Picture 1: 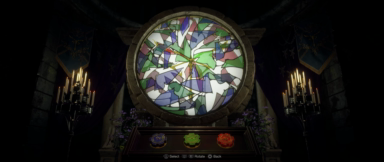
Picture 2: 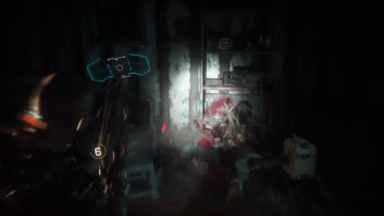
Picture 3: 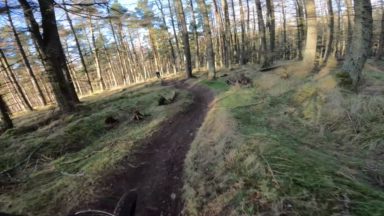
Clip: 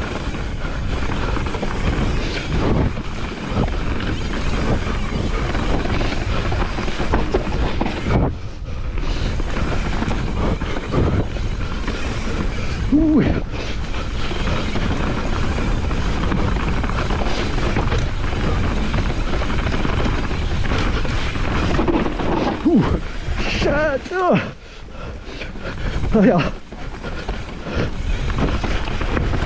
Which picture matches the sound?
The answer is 3